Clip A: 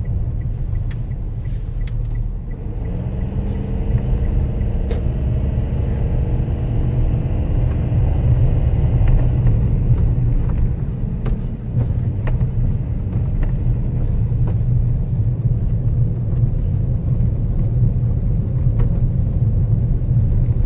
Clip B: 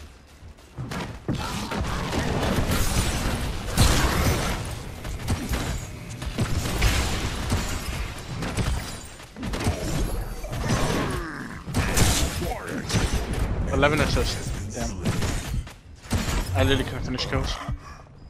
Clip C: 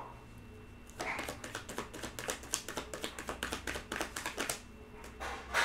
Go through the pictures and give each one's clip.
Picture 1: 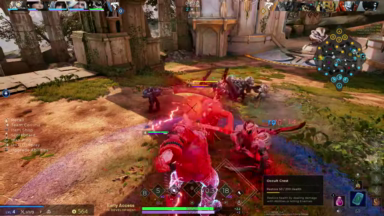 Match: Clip B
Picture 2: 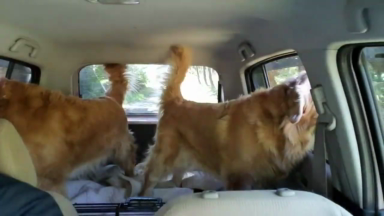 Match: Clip A